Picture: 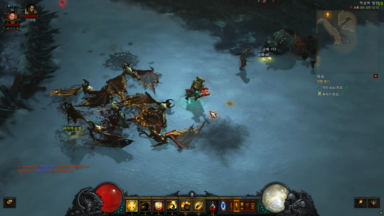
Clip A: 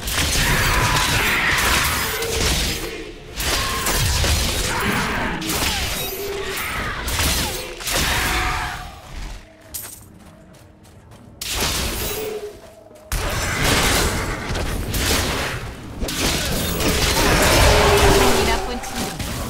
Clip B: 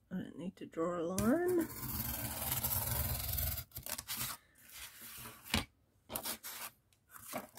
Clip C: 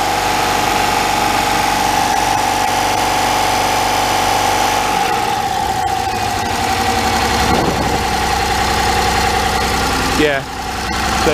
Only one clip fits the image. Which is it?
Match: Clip A